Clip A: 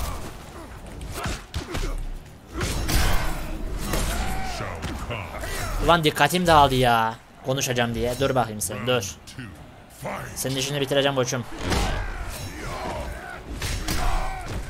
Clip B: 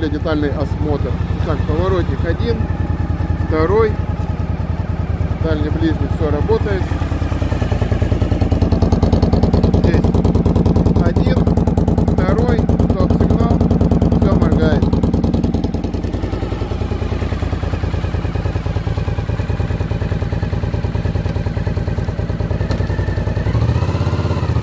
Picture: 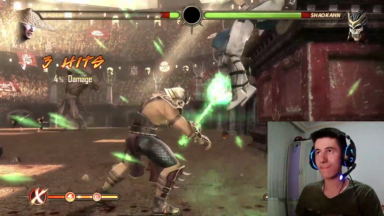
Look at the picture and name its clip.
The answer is A